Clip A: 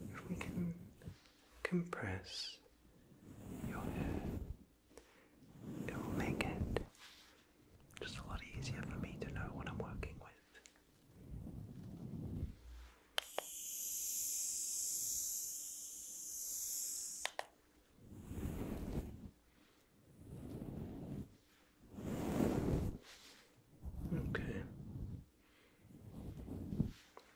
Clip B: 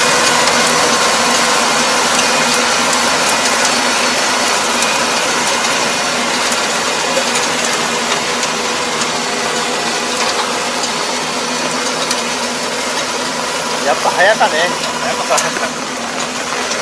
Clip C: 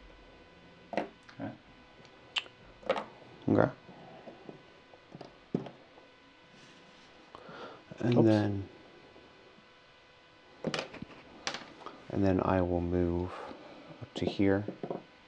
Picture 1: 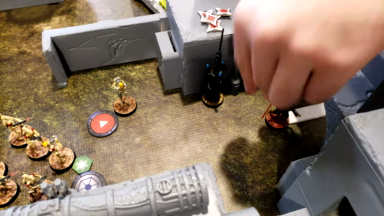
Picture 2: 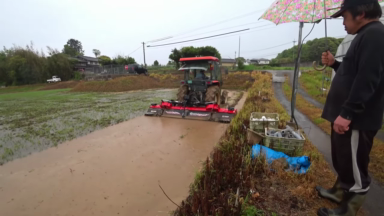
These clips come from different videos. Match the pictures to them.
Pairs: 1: C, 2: B